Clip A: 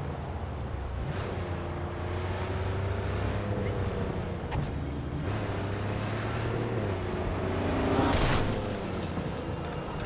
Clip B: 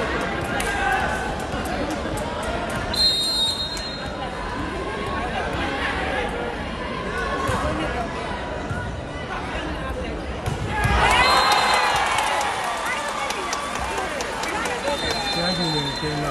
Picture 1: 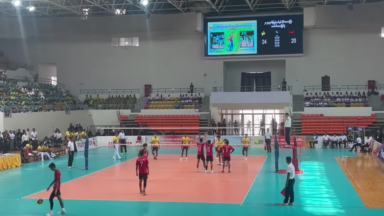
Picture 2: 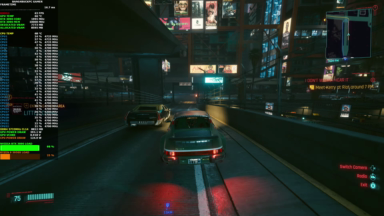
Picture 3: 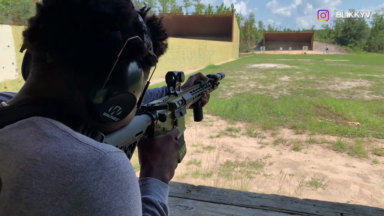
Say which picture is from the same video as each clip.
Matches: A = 2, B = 1